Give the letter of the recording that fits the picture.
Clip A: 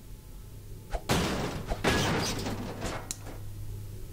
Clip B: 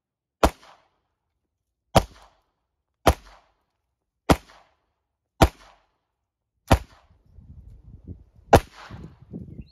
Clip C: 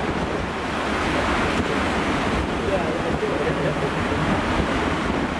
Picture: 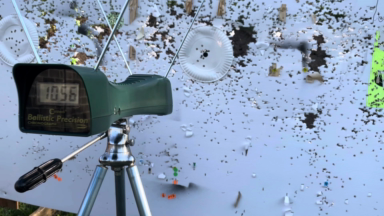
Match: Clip B